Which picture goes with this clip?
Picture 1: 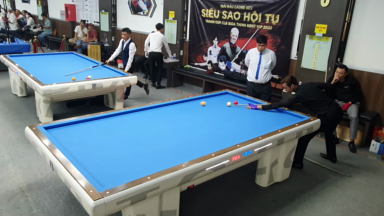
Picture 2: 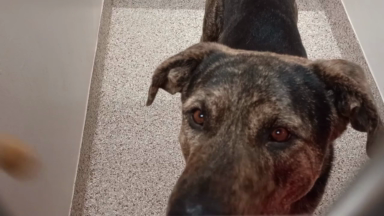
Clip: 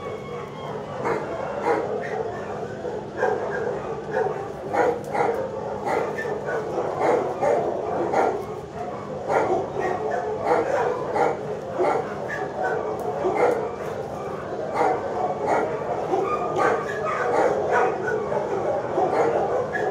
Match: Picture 2